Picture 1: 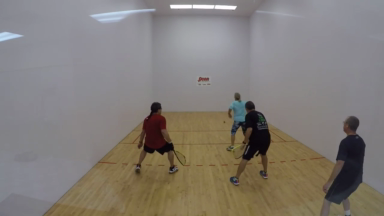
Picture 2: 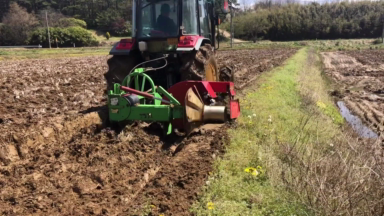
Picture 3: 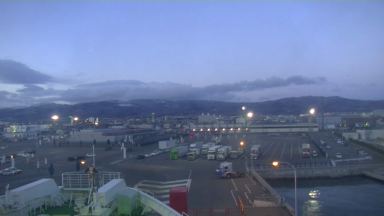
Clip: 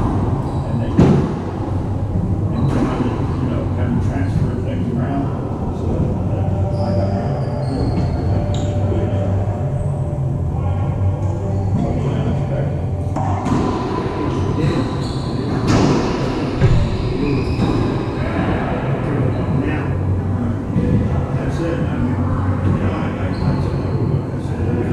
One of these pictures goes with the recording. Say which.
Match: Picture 1